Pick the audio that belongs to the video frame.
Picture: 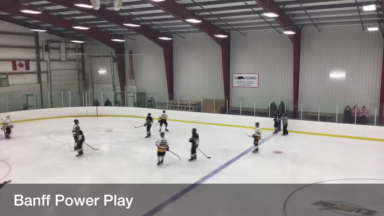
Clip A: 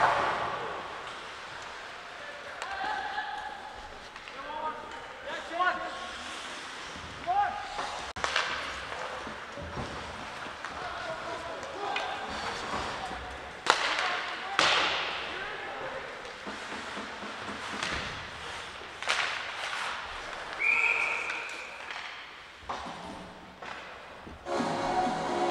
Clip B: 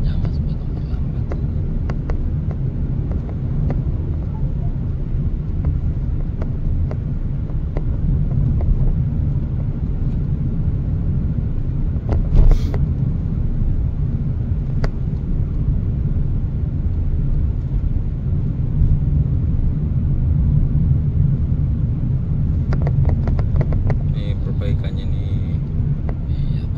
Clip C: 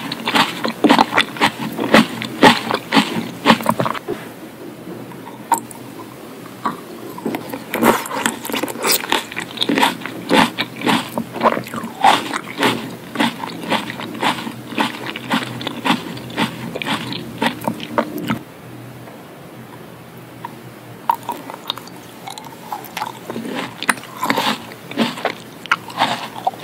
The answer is A